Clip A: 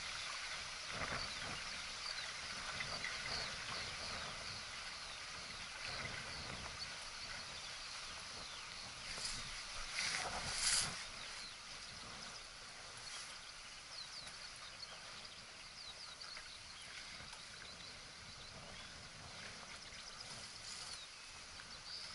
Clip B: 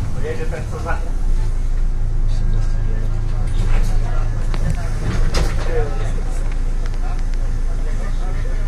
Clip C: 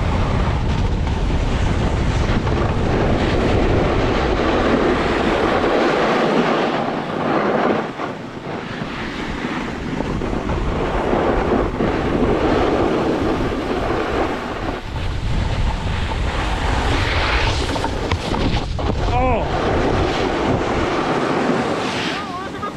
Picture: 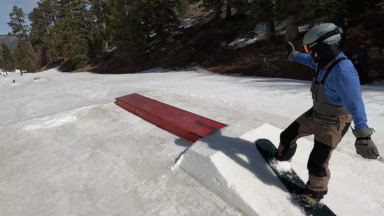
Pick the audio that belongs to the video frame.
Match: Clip C